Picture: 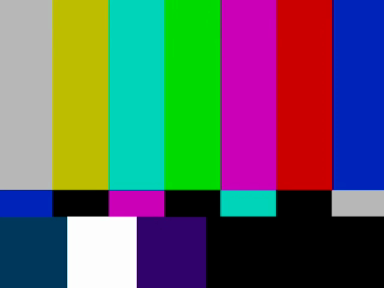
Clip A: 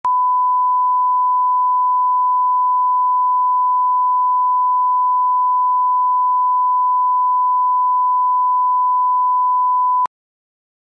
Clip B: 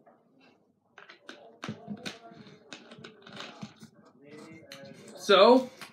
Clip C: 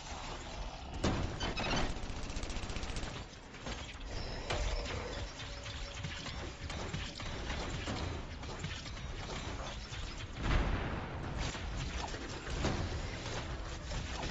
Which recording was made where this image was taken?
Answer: A